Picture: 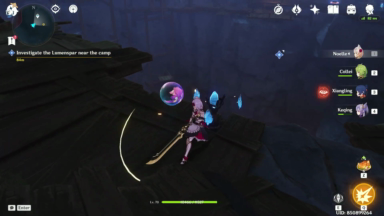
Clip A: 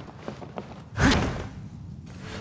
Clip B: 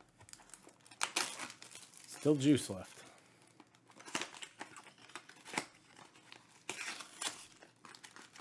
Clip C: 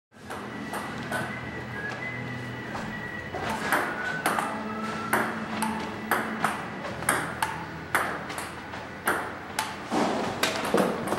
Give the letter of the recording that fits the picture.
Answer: A